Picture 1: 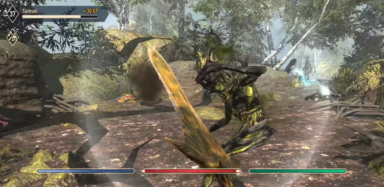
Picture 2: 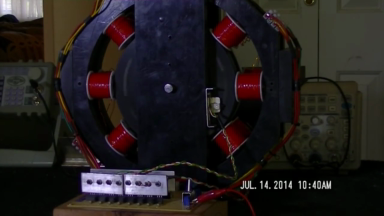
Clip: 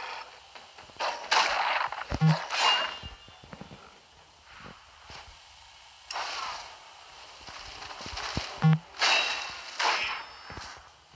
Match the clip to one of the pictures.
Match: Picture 1